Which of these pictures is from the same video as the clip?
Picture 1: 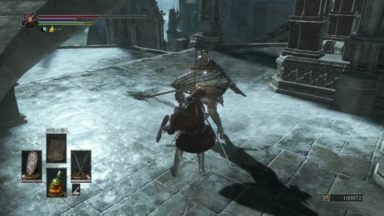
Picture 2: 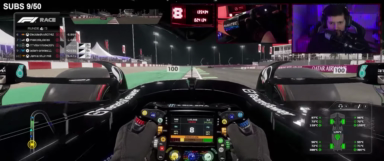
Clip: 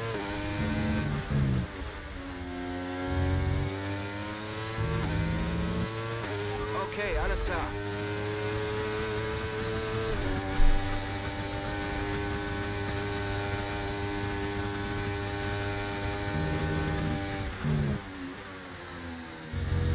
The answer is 2